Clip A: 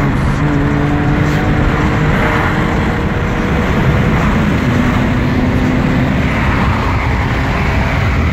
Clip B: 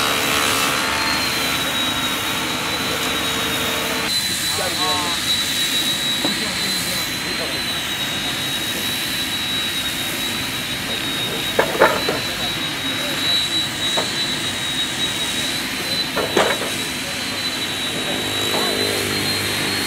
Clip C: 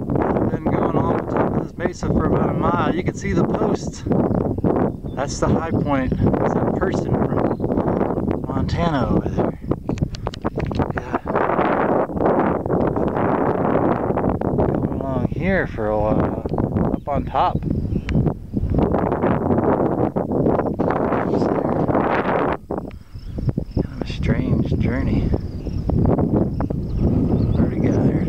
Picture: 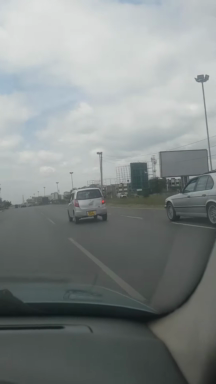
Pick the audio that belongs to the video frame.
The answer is A